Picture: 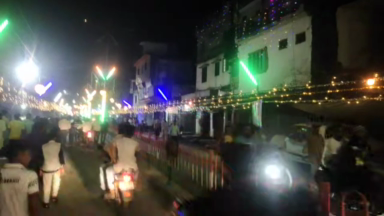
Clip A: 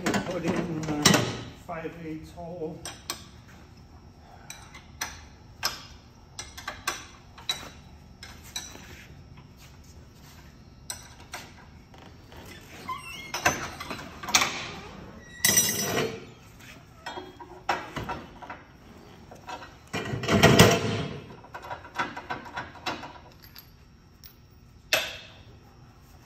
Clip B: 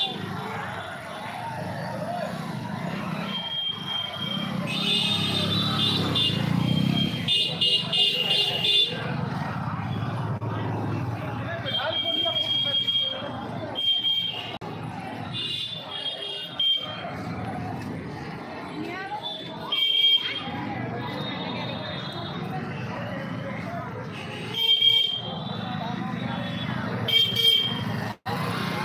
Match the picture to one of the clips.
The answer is B